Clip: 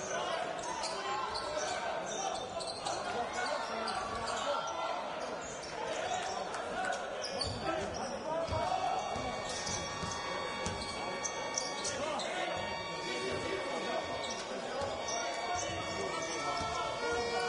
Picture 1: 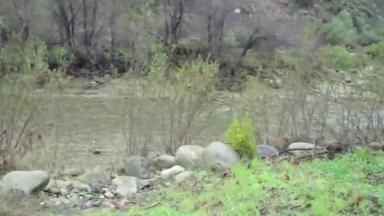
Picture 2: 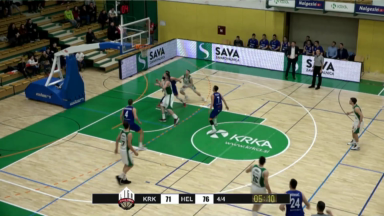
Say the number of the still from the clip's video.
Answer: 2